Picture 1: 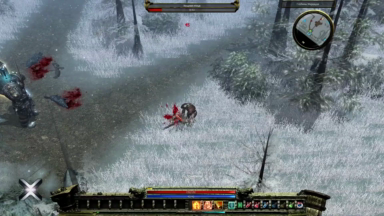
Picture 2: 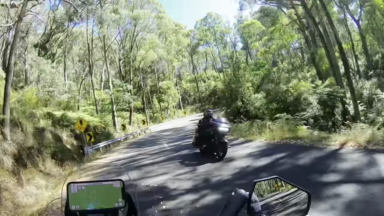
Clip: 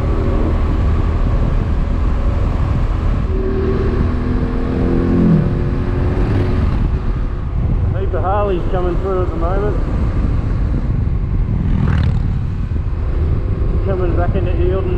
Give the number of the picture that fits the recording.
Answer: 2